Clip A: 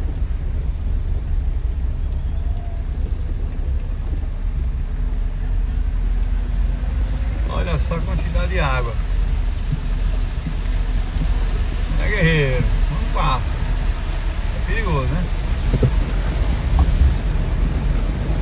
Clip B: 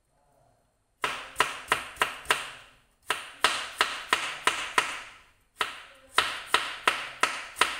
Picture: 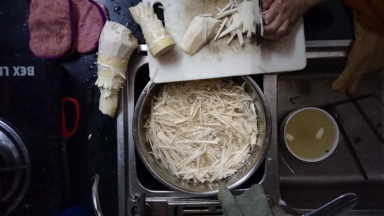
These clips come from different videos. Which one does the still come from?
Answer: B